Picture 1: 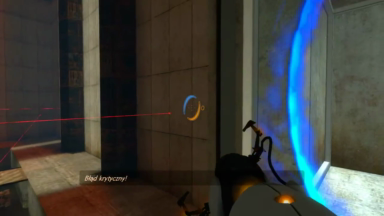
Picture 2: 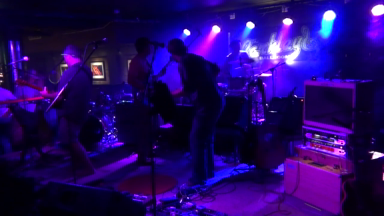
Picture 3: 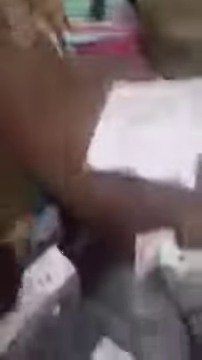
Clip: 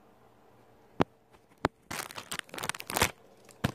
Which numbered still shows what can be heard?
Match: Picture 3